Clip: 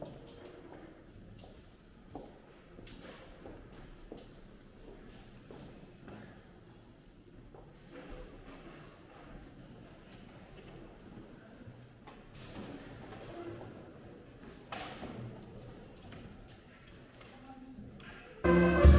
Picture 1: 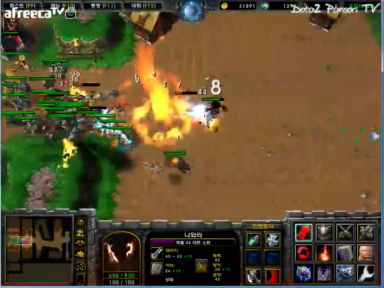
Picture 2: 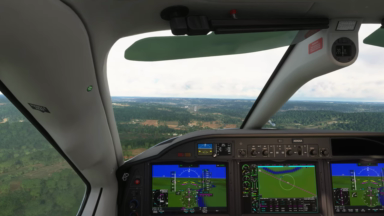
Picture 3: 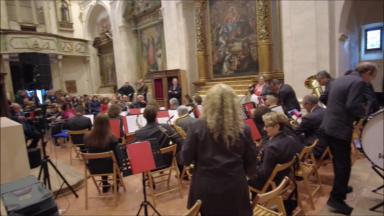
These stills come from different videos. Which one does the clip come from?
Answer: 3